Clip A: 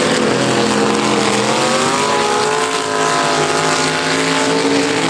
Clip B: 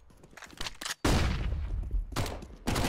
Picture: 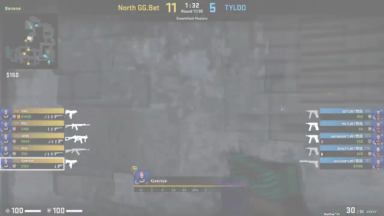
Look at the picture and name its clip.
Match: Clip B